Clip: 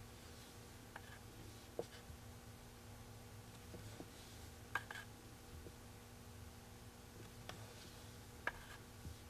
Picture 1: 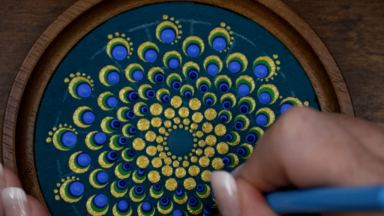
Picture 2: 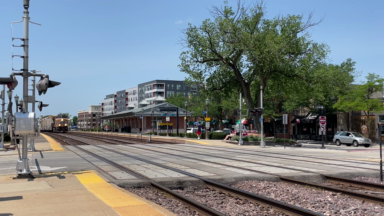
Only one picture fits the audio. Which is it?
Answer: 1